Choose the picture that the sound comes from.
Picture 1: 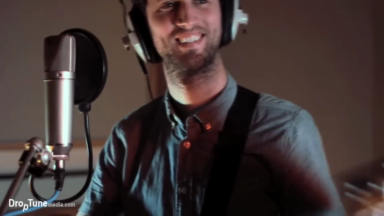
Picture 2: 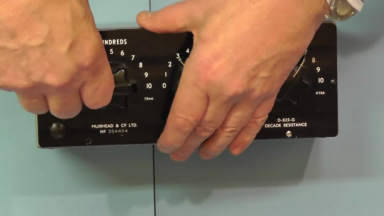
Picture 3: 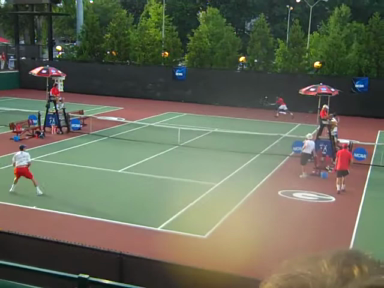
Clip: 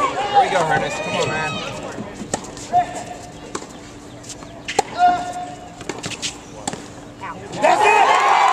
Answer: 3